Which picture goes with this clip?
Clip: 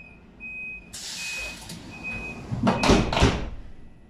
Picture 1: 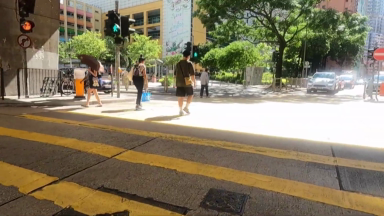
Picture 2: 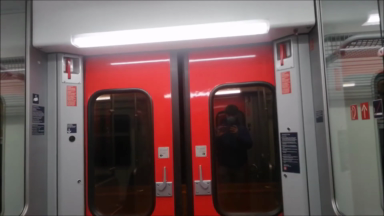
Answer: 2